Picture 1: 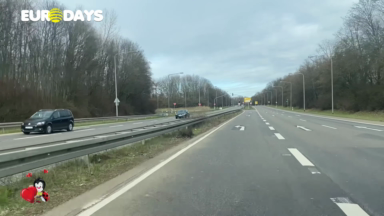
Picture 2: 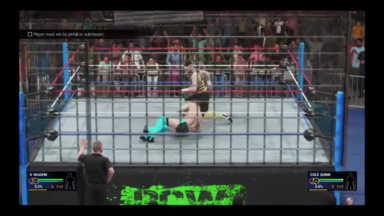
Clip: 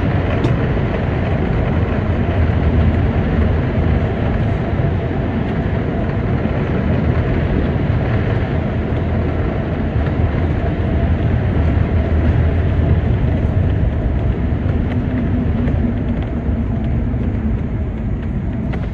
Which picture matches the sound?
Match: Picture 1